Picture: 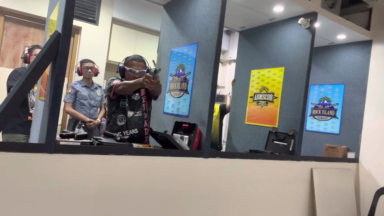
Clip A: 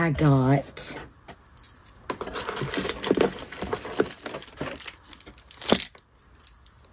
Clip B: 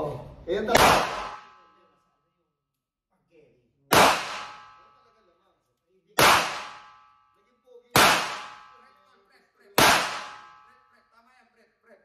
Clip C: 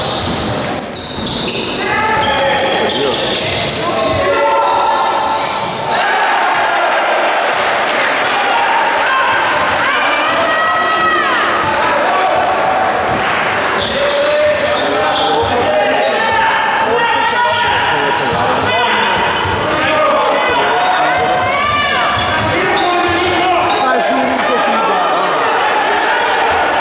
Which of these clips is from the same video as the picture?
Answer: B